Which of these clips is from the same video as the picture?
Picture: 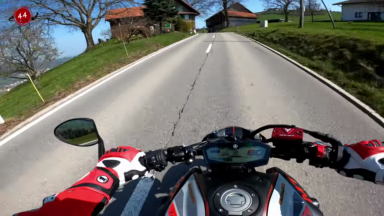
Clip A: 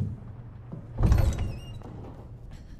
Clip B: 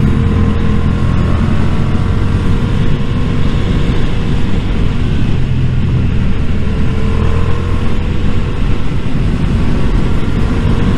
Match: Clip B